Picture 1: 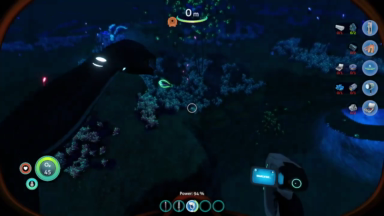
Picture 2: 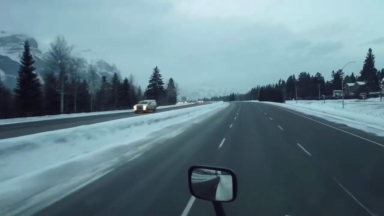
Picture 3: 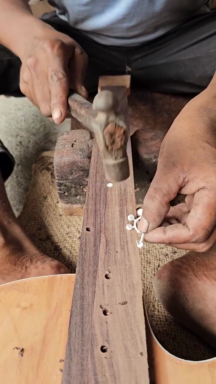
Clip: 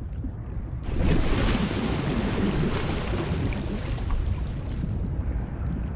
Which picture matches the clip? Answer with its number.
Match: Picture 1